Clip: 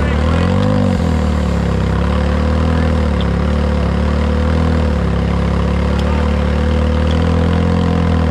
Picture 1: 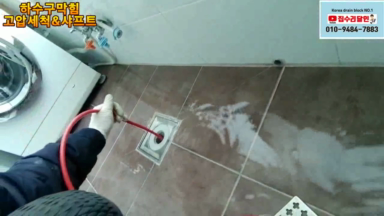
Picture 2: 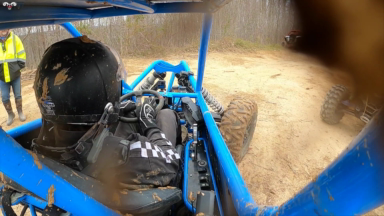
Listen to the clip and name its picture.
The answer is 2